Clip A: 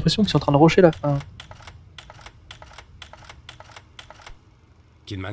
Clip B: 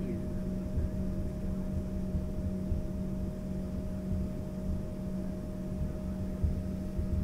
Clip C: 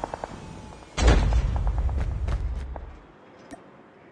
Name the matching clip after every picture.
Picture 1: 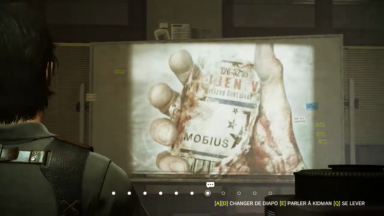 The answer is A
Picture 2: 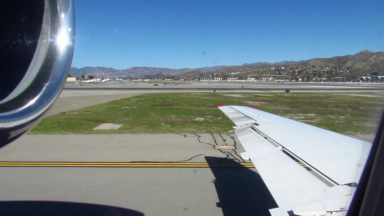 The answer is B